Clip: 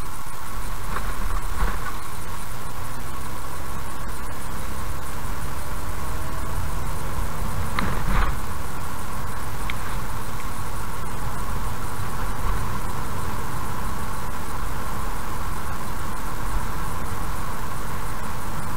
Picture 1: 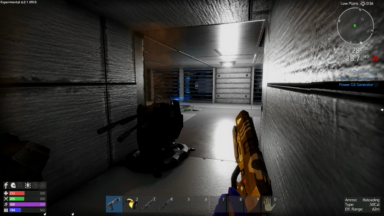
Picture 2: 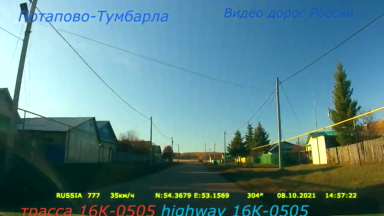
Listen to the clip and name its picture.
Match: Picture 2